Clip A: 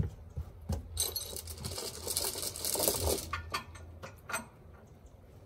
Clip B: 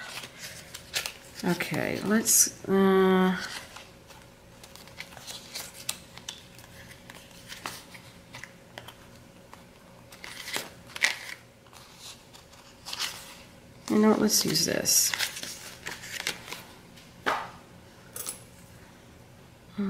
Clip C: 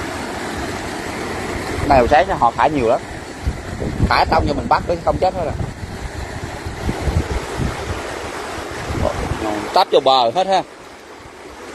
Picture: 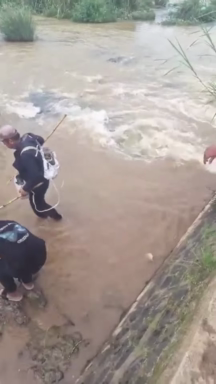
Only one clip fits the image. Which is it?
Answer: C